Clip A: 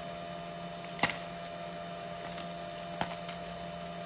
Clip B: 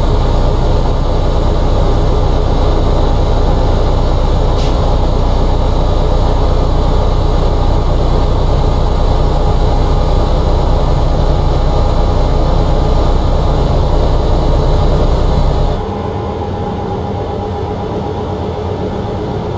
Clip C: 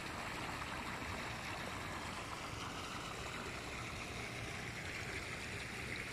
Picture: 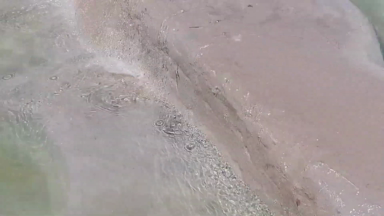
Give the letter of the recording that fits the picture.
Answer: C